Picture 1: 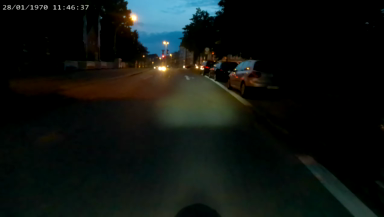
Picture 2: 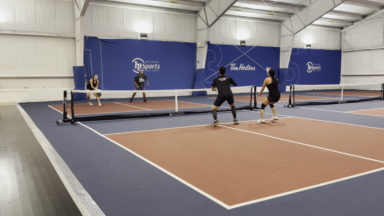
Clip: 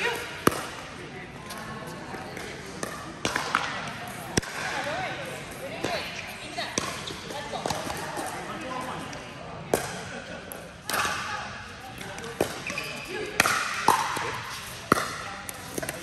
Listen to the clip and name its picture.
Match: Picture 2